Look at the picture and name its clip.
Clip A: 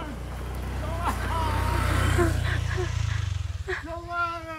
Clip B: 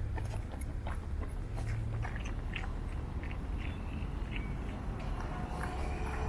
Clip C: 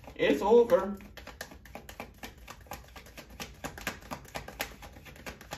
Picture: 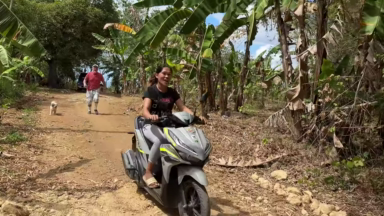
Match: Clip A